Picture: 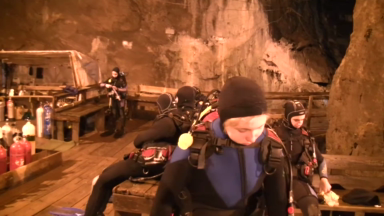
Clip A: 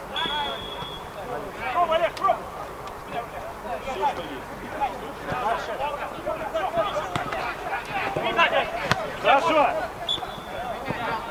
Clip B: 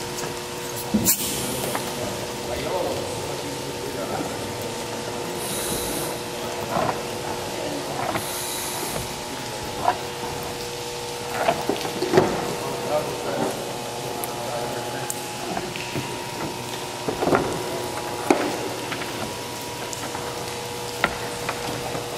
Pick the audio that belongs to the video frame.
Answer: B